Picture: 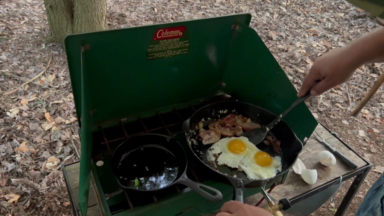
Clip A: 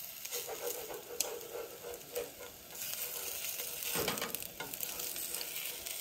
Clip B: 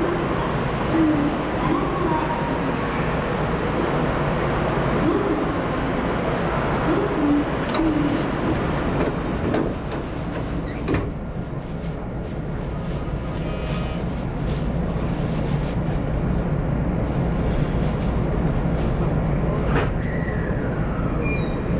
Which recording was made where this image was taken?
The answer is A